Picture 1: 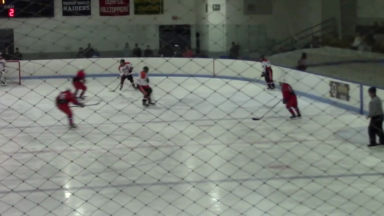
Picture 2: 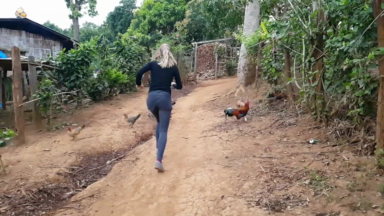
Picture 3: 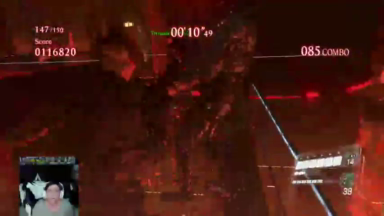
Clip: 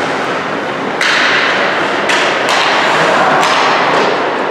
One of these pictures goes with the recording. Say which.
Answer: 1